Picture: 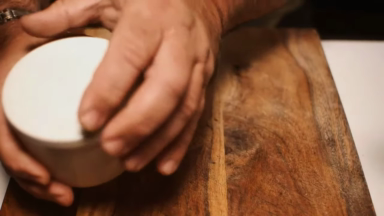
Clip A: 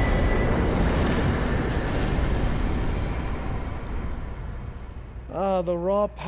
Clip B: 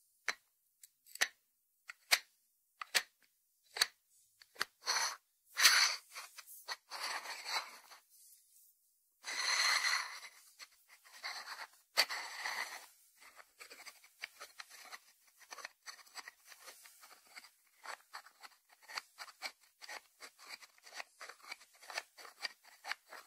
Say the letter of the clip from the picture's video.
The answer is B